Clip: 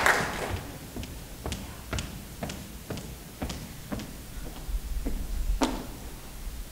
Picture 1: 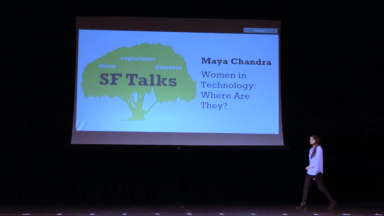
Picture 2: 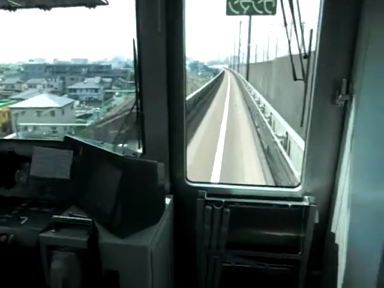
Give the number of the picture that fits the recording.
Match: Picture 1